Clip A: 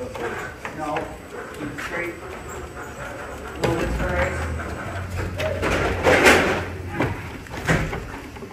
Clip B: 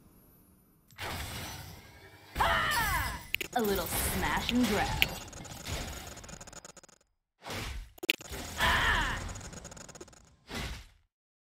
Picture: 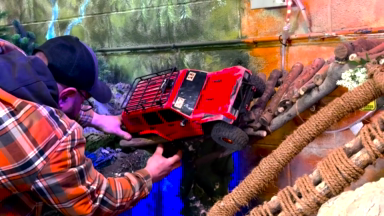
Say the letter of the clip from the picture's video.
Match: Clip A